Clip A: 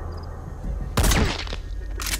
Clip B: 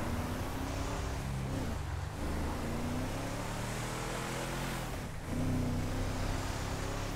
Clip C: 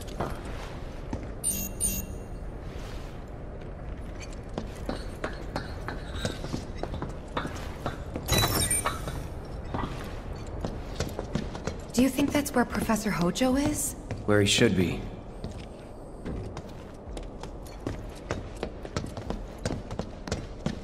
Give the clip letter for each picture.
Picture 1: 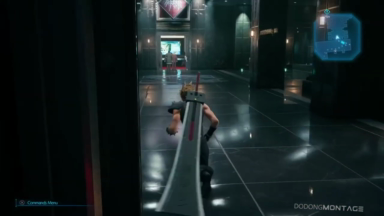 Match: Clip C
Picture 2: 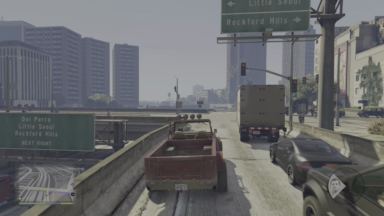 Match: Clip B